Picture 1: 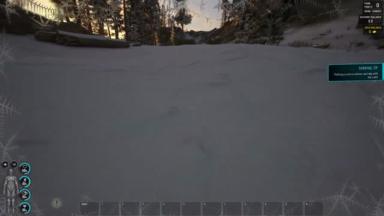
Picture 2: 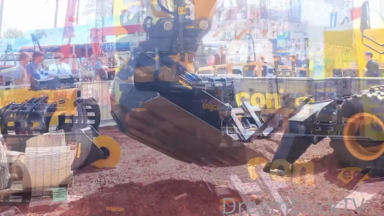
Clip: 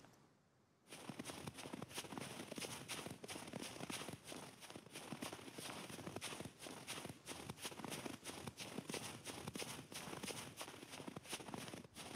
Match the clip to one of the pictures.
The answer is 1